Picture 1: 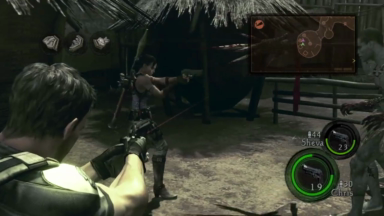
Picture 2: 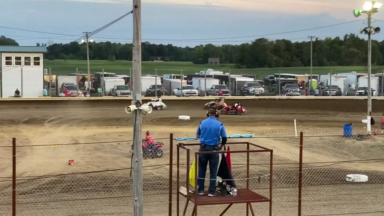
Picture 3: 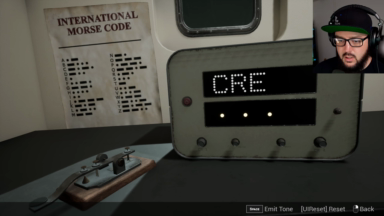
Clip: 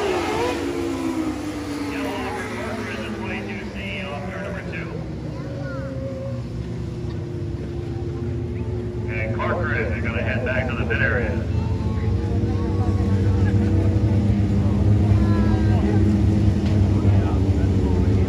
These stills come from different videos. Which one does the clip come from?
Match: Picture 2